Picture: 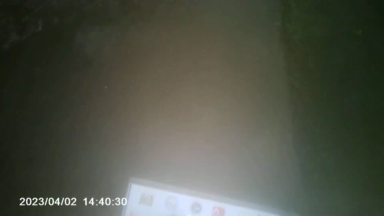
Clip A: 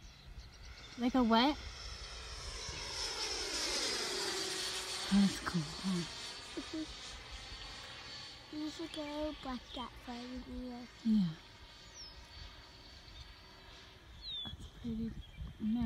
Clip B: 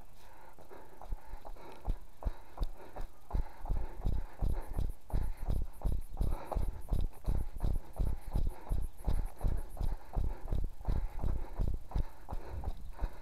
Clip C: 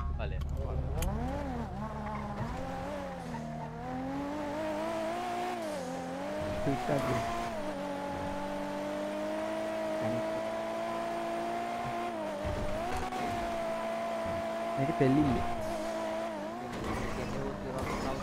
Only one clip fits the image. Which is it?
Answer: B